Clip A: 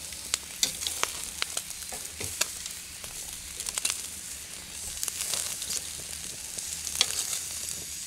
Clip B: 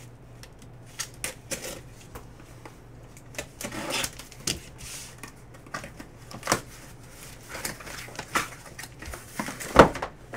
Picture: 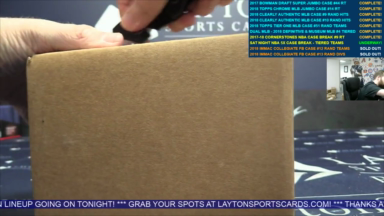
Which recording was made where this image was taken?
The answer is B